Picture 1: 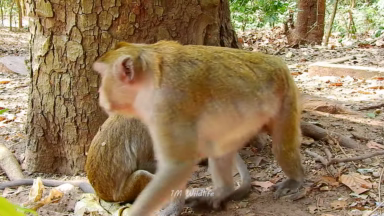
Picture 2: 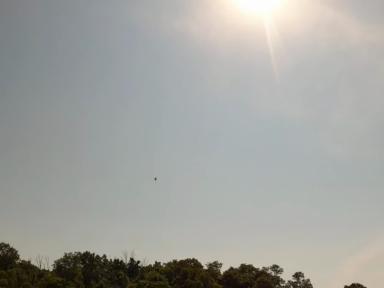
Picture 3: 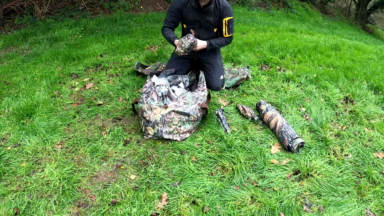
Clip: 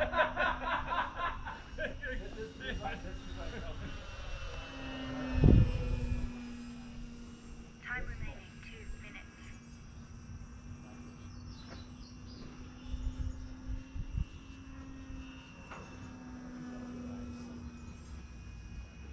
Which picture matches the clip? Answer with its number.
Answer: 2